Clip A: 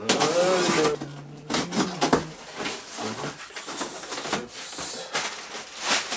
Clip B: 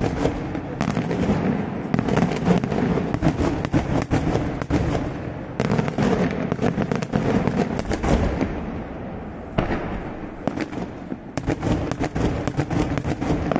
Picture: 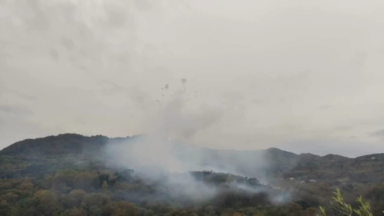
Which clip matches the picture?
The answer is B